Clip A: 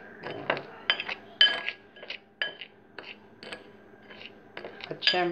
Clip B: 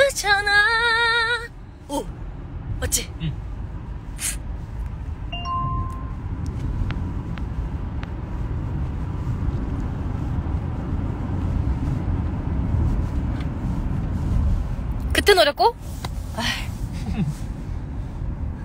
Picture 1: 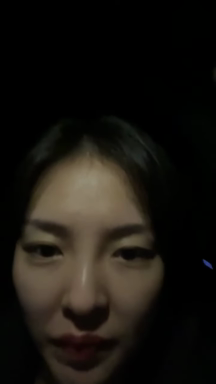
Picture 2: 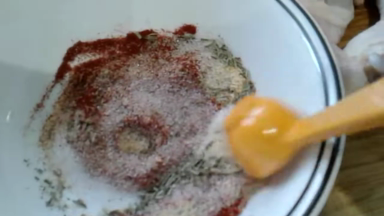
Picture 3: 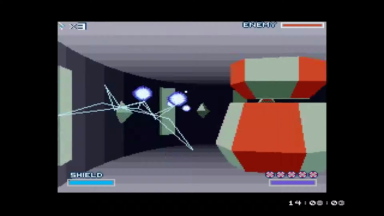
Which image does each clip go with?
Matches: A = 2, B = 1